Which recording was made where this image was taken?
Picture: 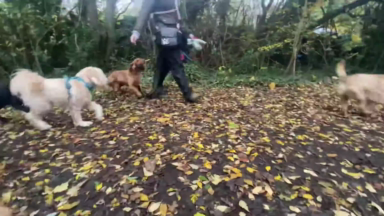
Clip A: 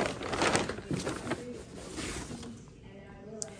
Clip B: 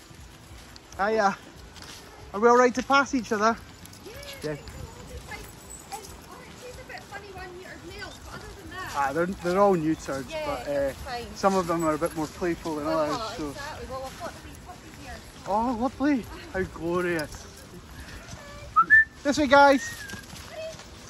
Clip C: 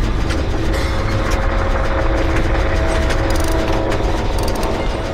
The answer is B